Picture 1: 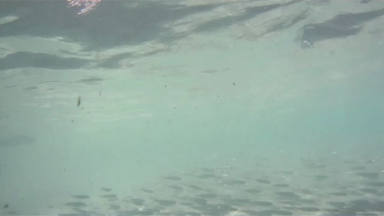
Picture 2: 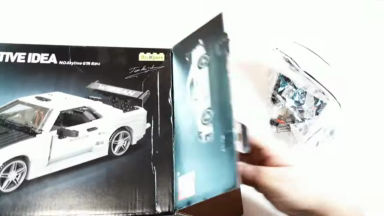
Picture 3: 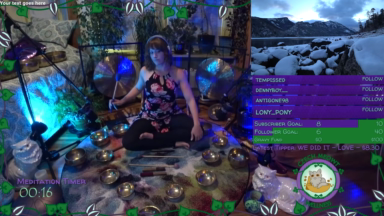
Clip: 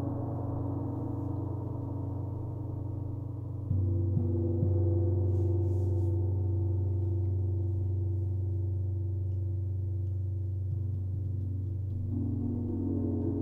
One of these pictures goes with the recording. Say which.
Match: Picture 3